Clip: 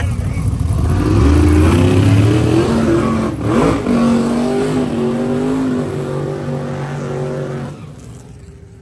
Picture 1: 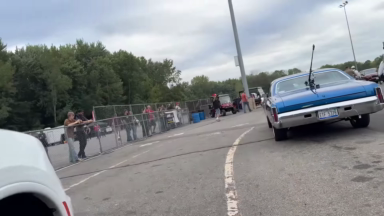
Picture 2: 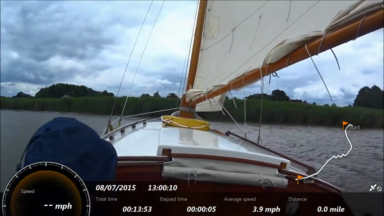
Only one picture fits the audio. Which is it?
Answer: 1